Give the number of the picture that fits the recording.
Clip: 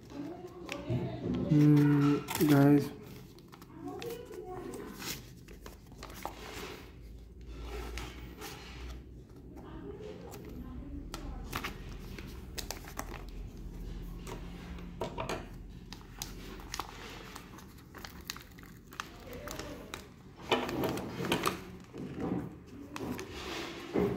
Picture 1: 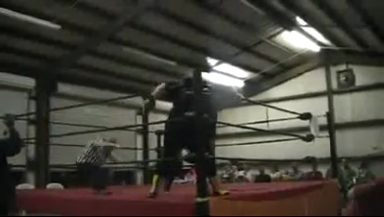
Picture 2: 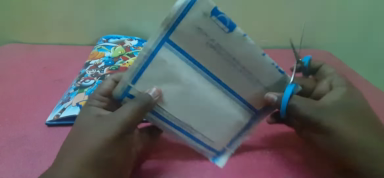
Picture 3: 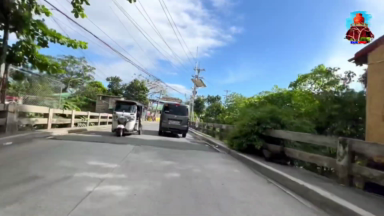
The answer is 2